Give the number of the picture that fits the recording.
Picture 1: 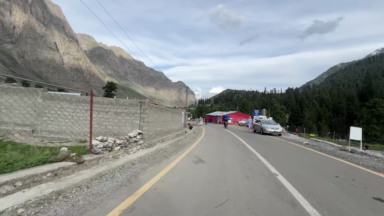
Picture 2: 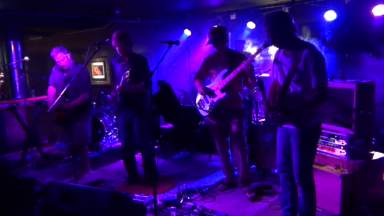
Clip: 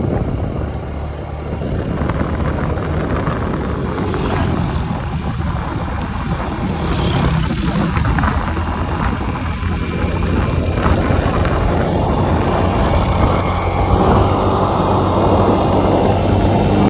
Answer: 1